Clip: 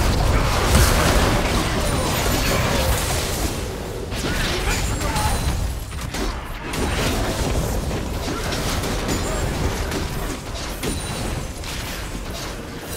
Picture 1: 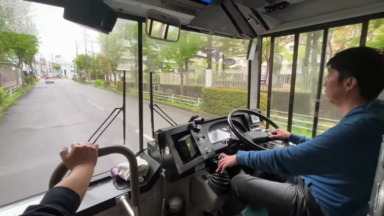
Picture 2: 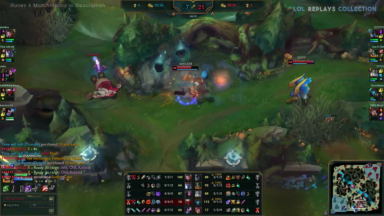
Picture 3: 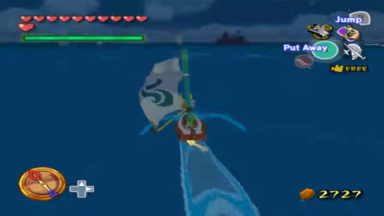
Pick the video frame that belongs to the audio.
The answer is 2